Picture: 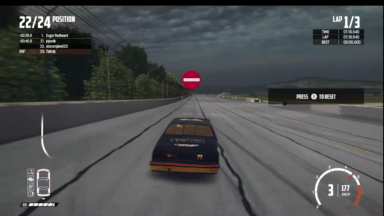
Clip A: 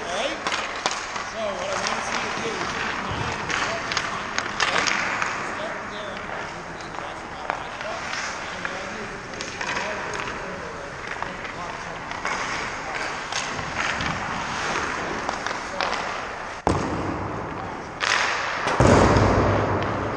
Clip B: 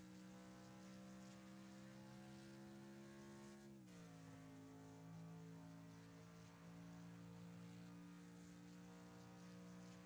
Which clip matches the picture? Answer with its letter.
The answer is B